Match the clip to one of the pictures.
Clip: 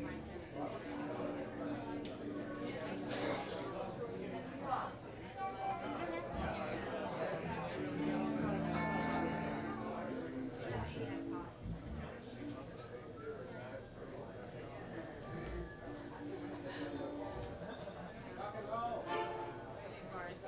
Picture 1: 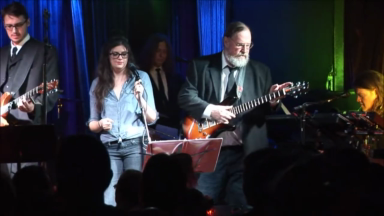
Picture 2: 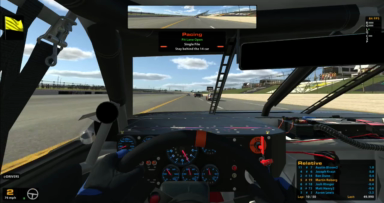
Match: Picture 1